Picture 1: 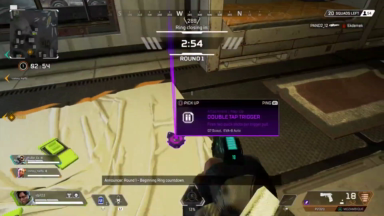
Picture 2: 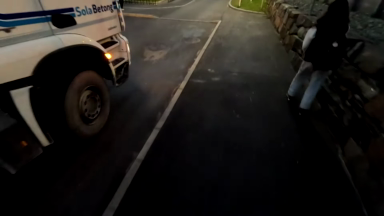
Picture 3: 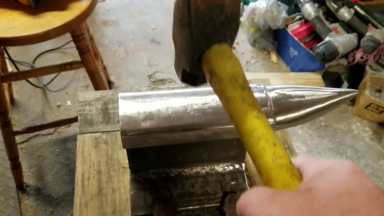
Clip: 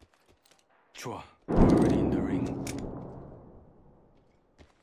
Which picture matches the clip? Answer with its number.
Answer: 1